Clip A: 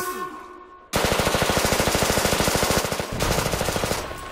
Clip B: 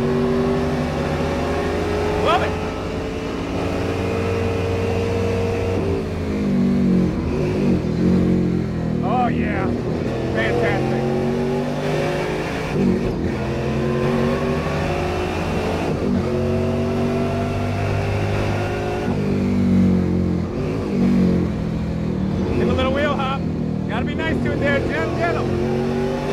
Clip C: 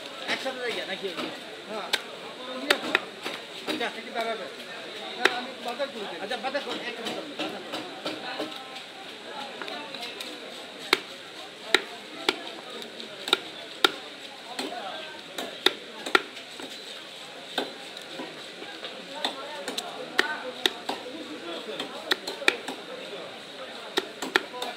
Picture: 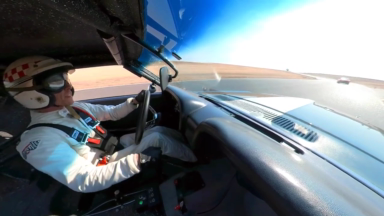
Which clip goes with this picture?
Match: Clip B